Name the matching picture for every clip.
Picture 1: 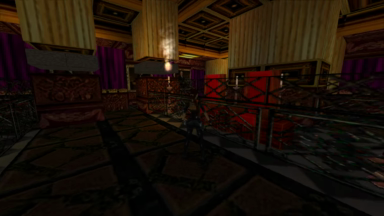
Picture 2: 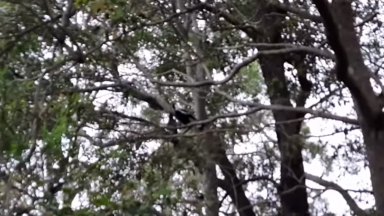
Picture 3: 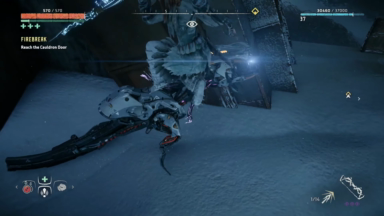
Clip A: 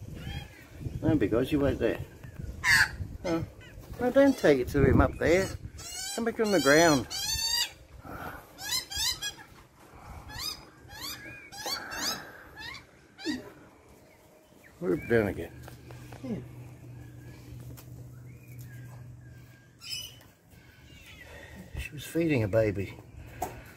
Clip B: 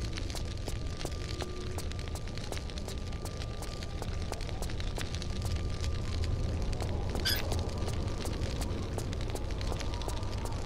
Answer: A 2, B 1